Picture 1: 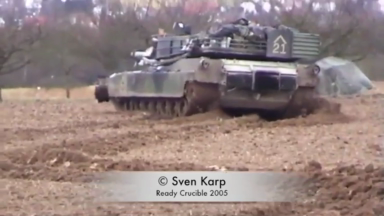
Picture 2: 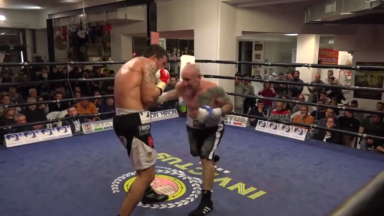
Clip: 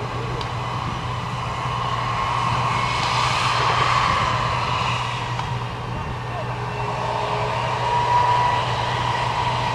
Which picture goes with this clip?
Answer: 1